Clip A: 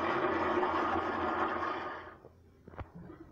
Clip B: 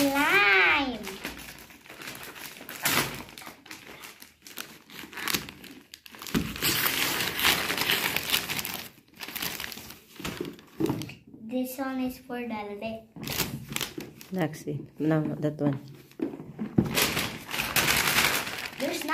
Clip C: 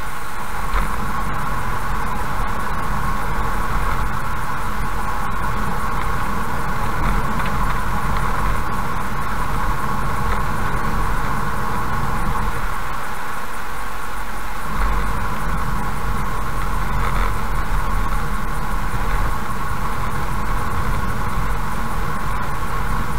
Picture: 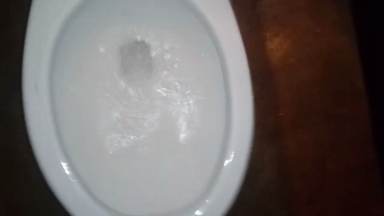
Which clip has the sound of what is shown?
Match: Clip A